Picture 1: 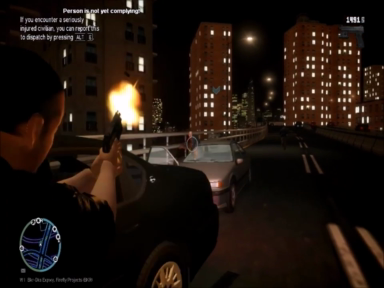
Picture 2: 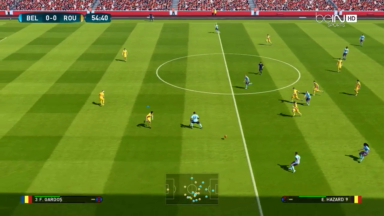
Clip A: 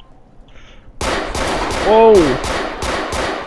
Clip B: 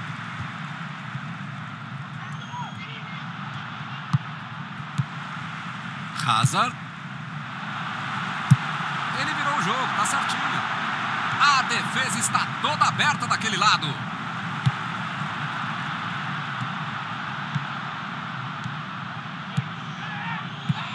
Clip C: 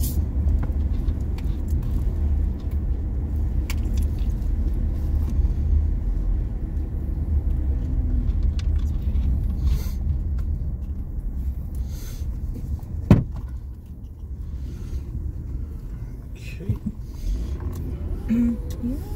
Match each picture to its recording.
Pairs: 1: A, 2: B